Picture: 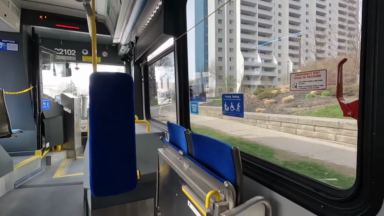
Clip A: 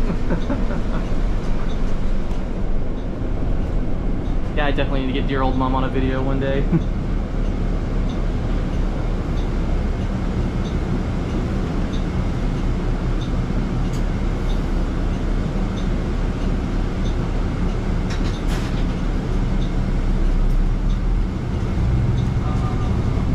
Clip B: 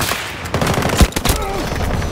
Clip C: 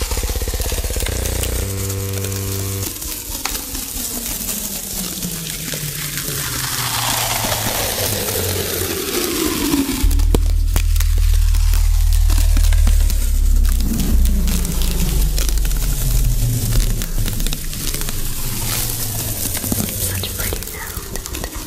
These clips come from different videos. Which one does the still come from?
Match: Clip A